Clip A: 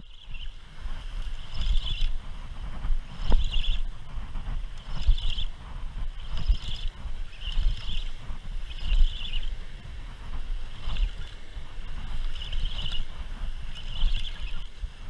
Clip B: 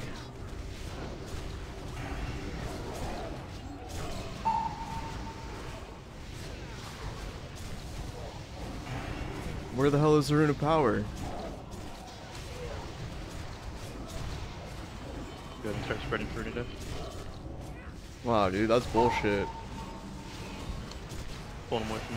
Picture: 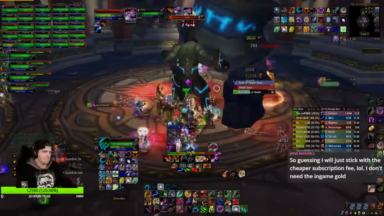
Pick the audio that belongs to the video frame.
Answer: B